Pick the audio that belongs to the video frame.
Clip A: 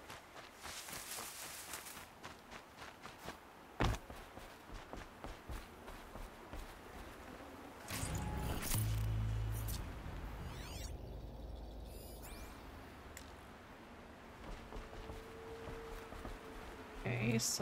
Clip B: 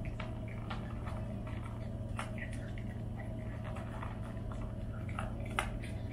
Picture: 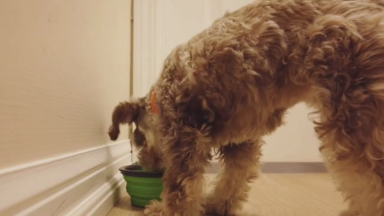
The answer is B